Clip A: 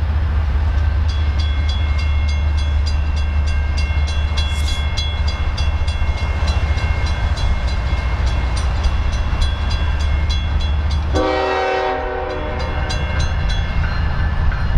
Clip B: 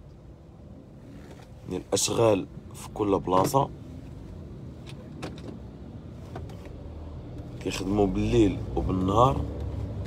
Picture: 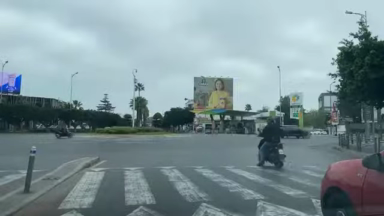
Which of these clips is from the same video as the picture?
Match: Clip B